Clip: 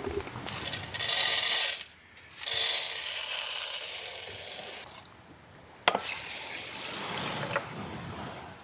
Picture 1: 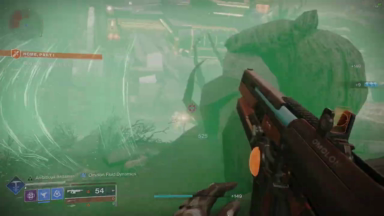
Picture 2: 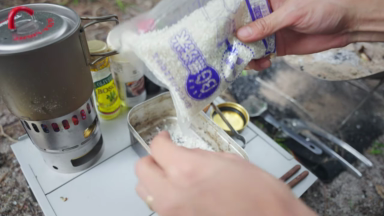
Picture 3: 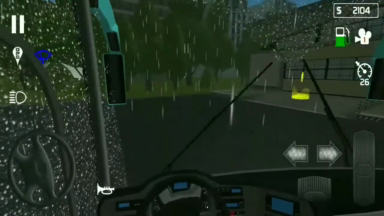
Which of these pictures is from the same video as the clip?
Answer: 2